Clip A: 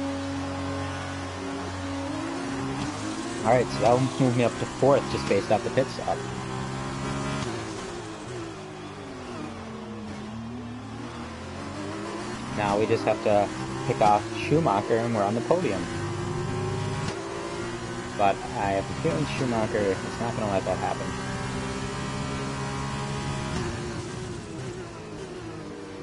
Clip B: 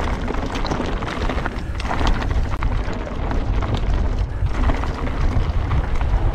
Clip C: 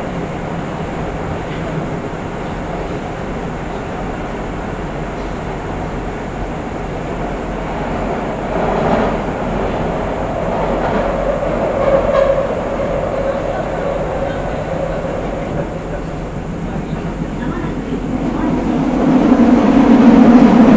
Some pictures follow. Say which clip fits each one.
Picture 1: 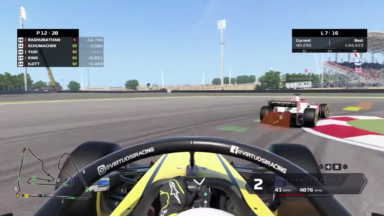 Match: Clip A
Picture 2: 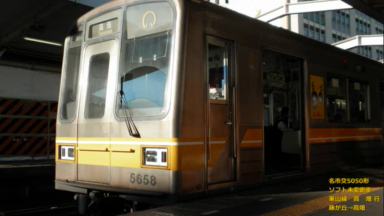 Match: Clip C